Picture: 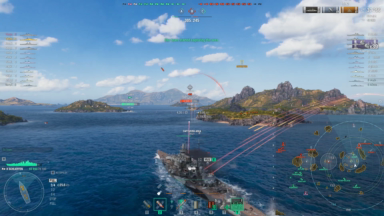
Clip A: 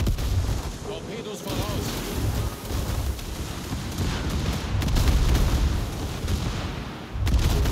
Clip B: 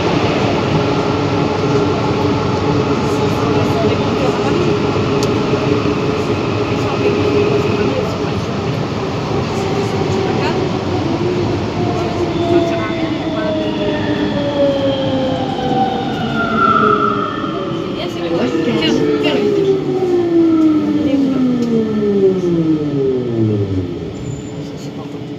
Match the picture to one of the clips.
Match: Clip A